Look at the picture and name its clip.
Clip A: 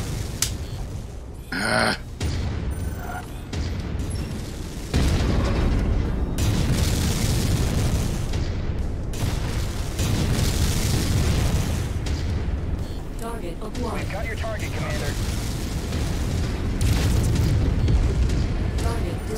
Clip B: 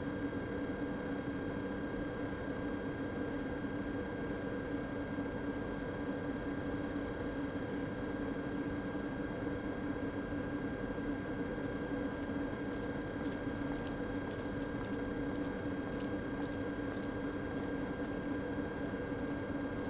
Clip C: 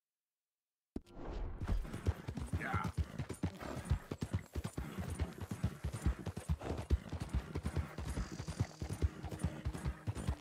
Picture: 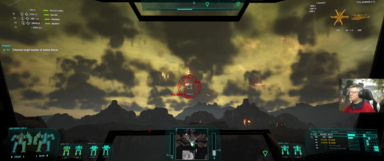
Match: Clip A